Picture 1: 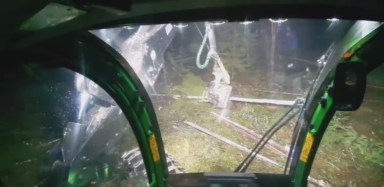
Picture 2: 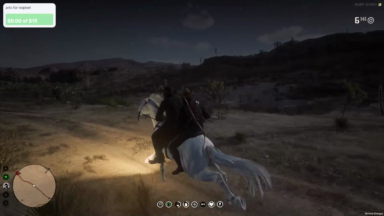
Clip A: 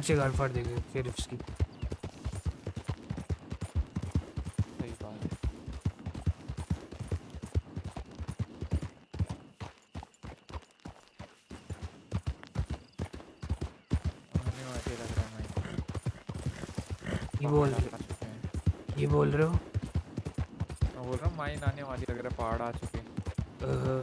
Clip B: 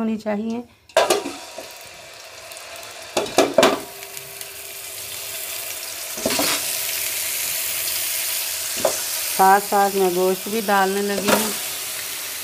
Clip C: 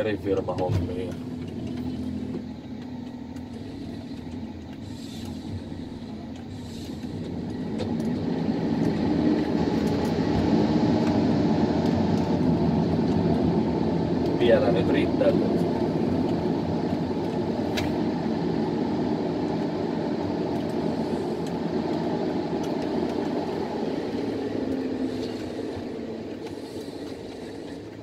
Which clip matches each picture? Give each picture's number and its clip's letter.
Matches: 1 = C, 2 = A